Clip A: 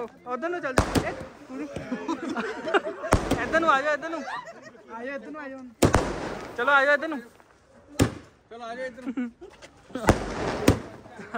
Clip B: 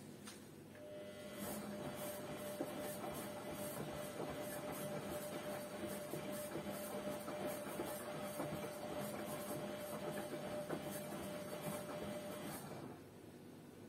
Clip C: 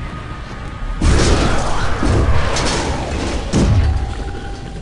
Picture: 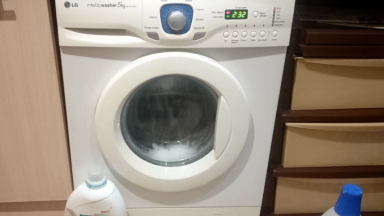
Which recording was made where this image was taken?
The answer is B